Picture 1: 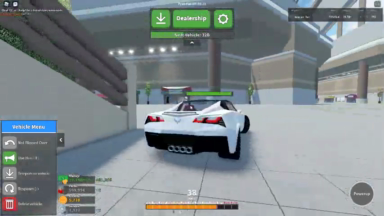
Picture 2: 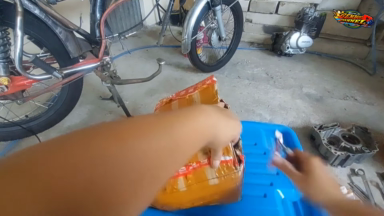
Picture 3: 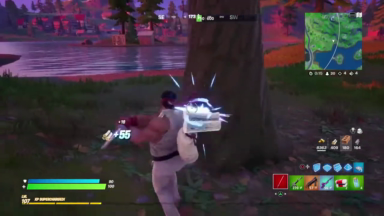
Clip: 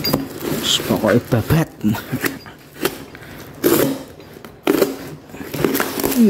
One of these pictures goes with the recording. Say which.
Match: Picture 2